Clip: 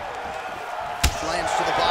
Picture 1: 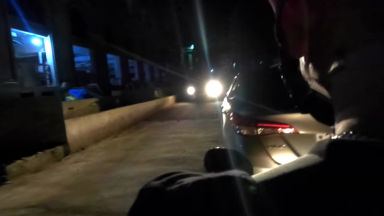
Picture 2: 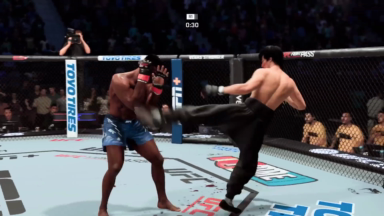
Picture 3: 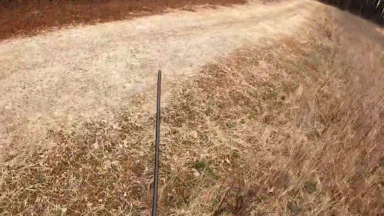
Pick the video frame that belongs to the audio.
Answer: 2